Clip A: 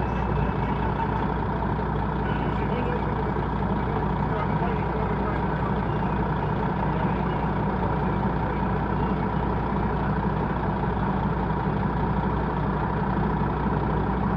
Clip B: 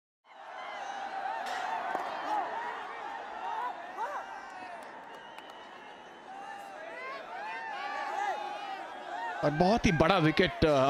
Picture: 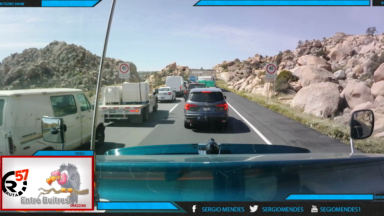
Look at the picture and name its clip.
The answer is A